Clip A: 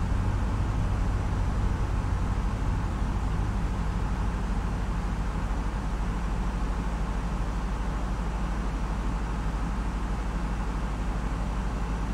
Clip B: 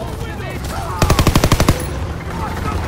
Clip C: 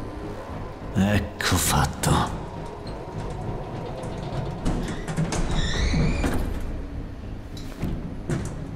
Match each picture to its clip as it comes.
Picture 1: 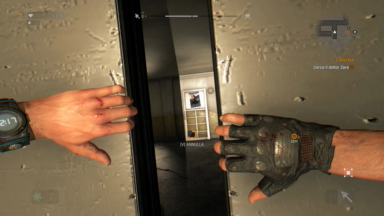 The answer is C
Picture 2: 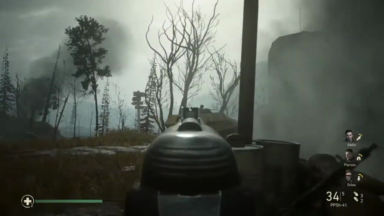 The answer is B